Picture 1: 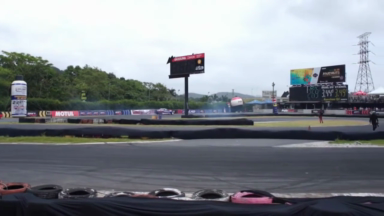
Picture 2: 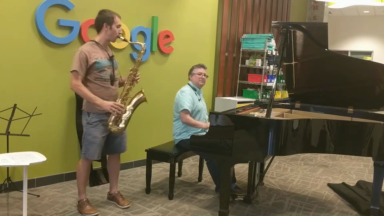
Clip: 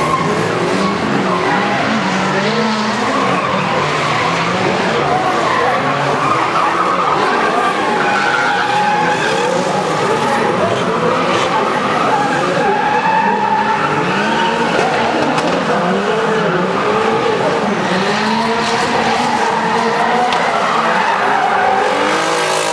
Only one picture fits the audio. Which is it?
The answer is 1